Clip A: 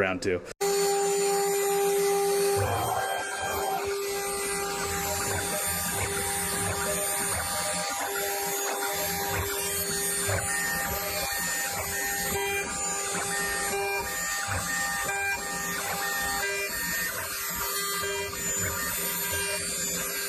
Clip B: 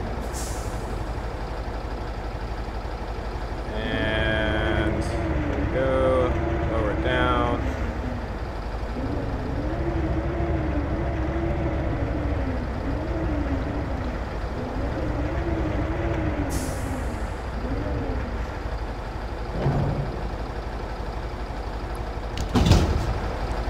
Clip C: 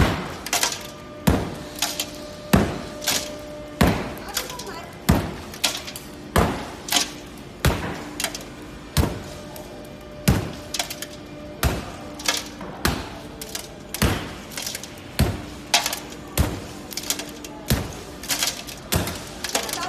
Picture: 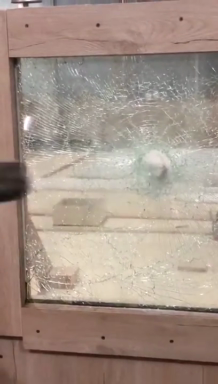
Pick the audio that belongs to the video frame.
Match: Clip C